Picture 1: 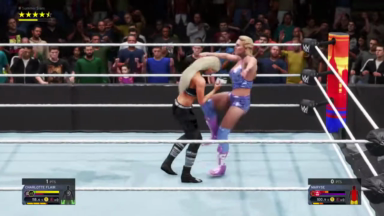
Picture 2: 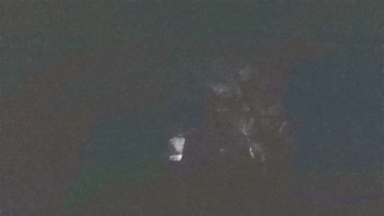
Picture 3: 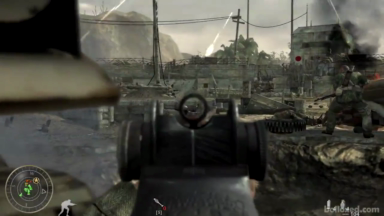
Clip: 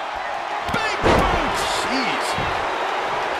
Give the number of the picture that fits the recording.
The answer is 1